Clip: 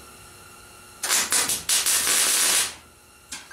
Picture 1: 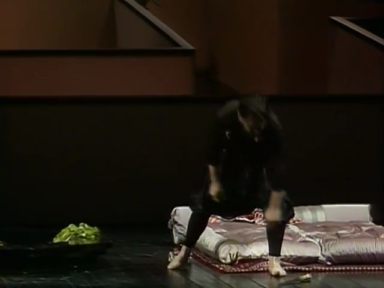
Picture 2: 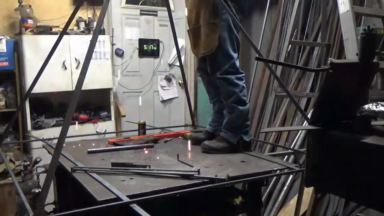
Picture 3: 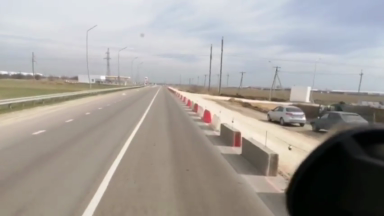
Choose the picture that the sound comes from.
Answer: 2